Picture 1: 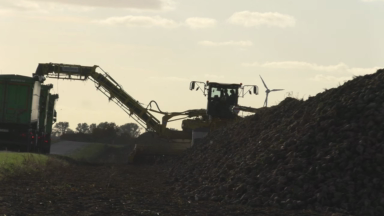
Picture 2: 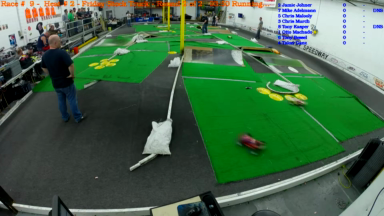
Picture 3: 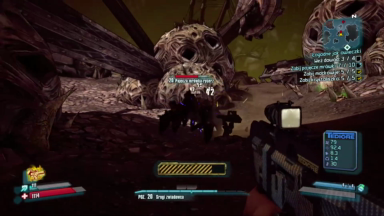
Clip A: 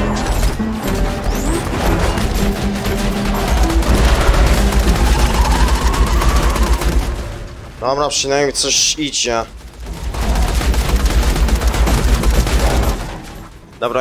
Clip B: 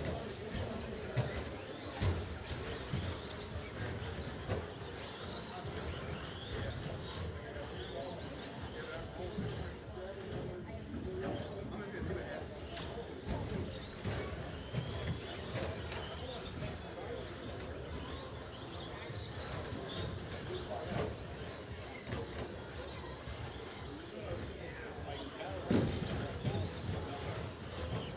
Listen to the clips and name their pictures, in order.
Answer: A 3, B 2